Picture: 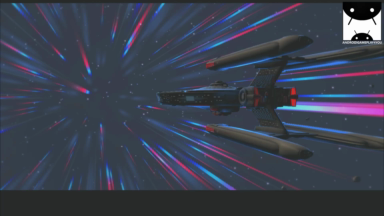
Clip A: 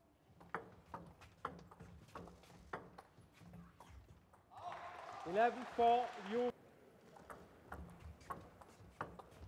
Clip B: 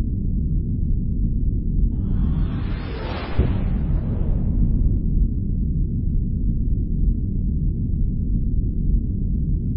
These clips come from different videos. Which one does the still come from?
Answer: B